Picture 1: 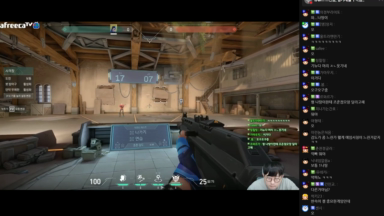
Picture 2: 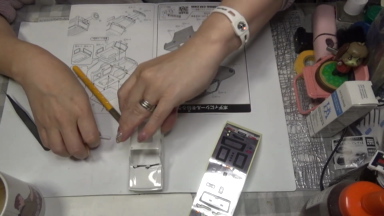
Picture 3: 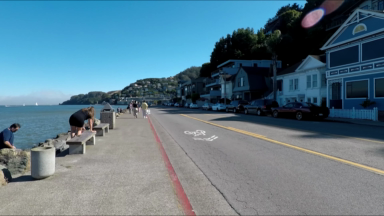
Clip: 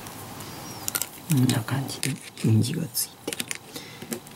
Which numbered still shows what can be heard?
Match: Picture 2